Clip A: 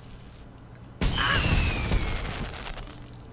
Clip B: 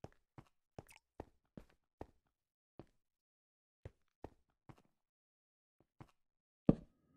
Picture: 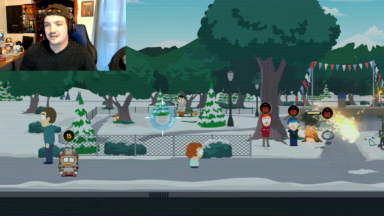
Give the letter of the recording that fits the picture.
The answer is A